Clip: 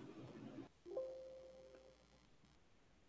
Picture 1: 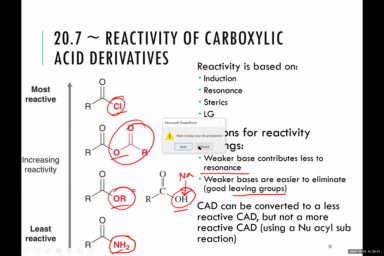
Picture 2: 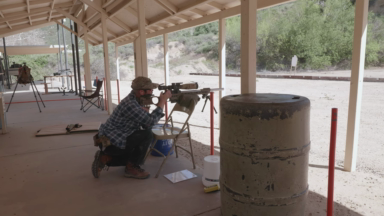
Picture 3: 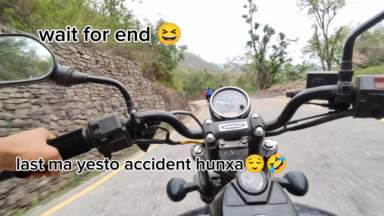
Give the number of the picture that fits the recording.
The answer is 1